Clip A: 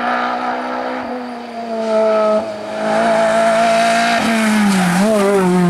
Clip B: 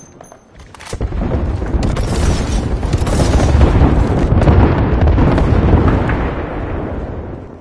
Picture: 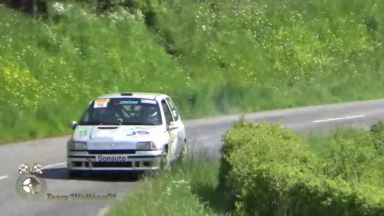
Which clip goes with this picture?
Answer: A